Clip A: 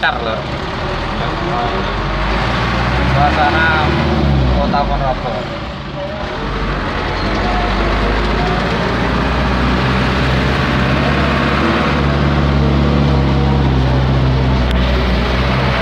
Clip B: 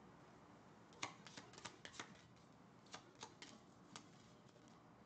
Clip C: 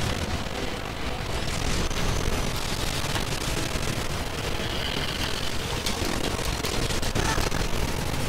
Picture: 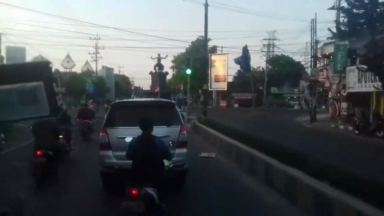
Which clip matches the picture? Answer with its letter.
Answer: A